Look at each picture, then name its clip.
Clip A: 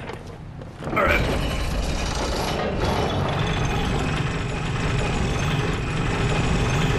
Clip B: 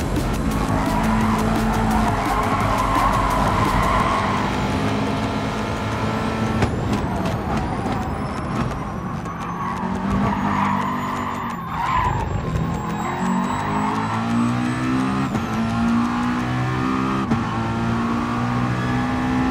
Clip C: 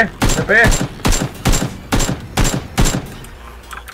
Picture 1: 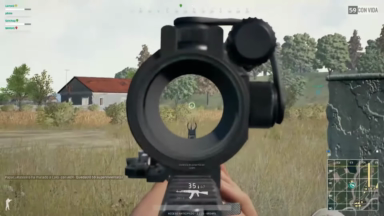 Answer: C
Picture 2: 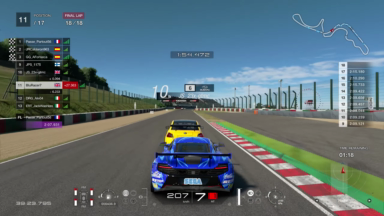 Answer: B